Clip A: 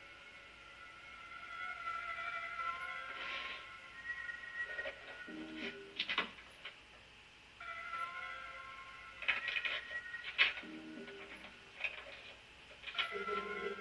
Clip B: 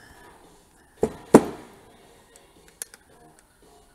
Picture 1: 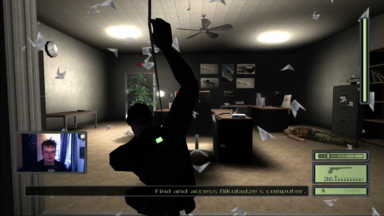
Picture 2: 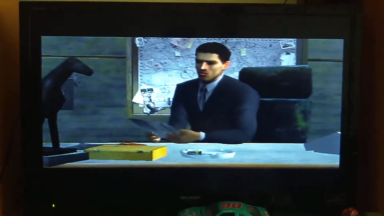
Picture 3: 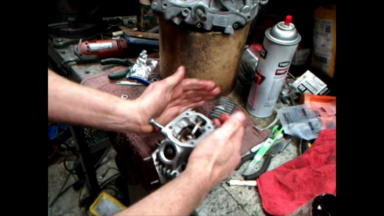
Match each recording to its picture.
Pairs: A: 2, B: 3